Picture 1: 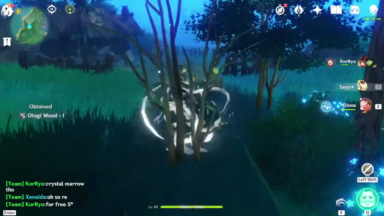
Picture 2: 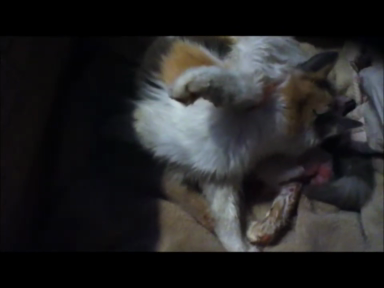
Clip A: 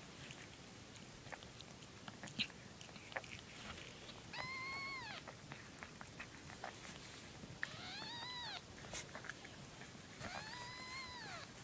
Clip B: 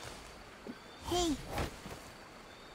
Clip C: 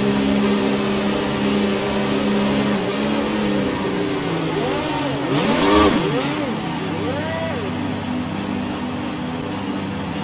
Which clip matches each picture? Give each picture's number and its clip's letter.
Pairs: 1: B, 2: A